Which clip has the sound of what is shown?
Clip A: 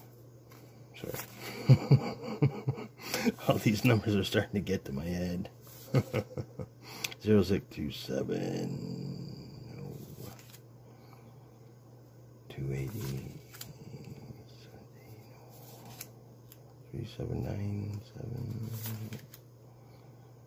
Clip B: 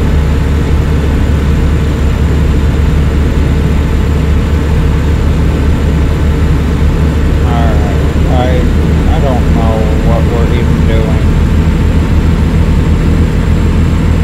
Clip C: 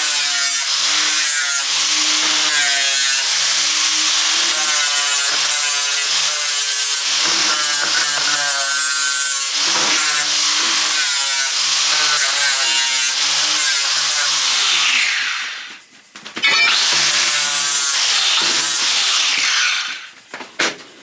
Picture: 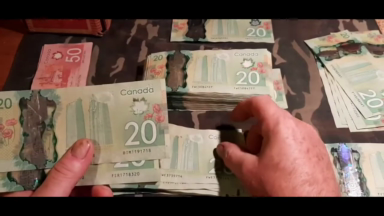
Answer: A